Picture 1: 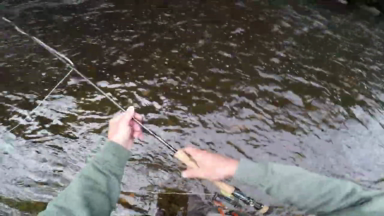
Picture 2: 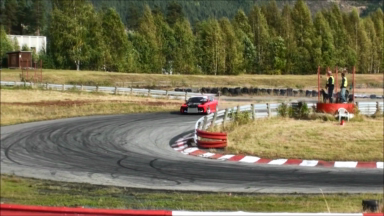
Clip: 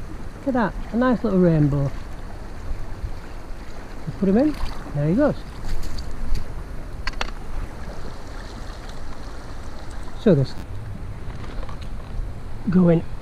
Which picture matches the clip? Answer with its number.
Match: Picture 1